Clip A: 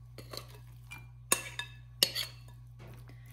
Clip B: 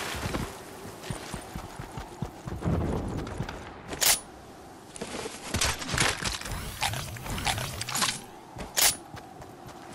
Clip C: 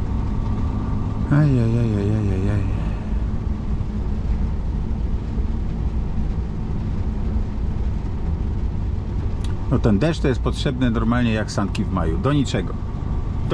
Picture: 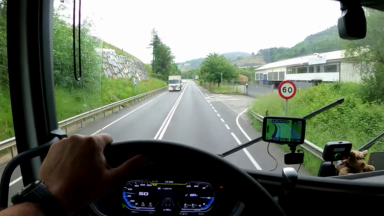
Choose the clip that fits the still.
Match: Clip C